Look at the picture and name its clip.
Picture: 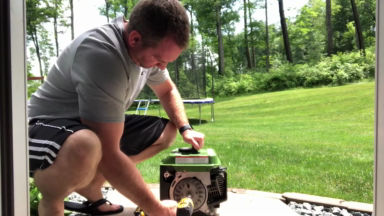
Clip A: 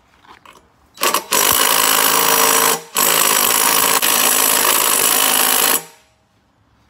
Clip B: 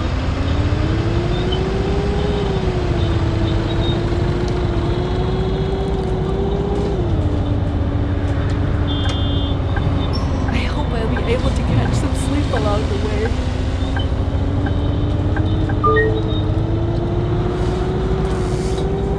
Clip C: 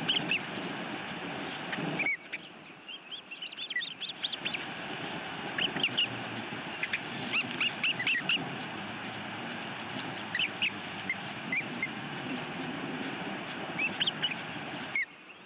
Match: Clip A